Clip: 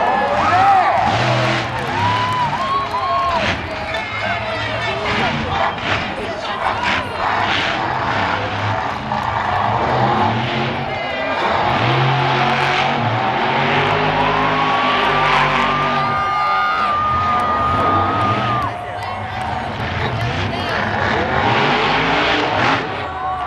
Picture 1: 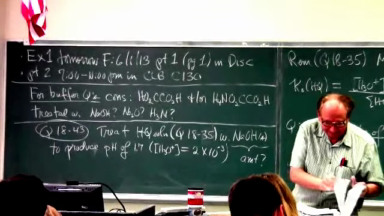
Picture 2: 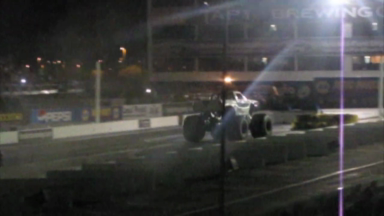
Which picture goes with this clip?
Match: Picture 2